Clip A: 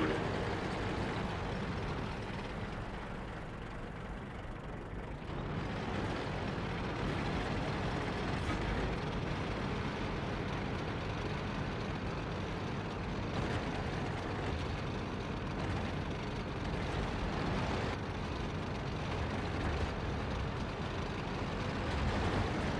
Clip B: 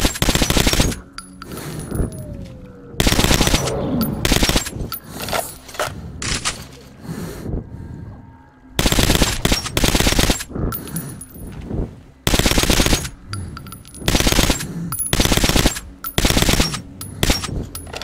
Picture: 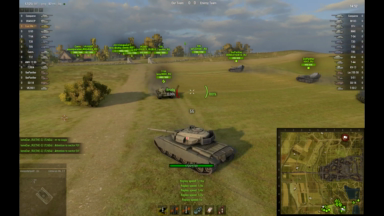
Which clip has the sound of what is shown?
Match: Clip A